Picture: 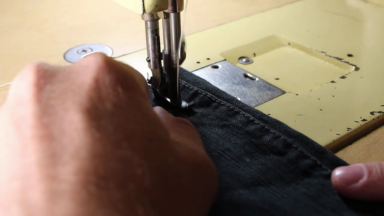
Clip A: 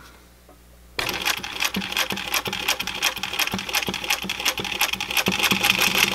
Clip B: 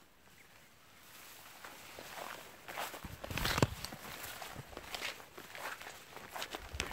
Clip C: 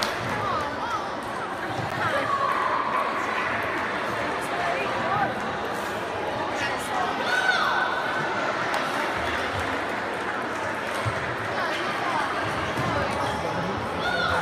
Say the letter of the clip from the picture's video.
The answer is A